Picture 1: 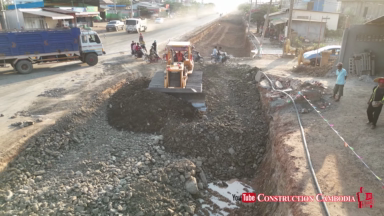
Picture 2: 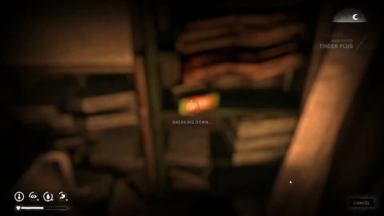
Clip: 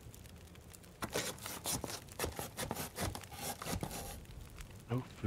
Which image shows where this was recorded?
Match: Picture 2